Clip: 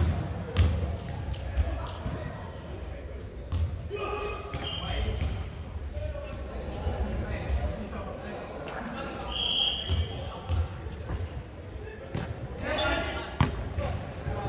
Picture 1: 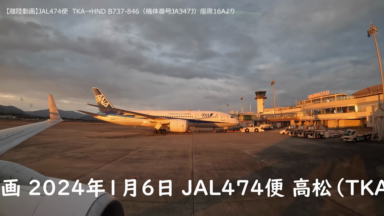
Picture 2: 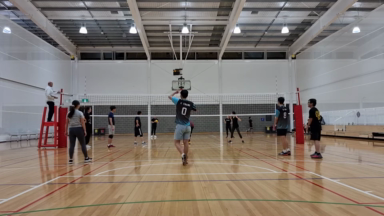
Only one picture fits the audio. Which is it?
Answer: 2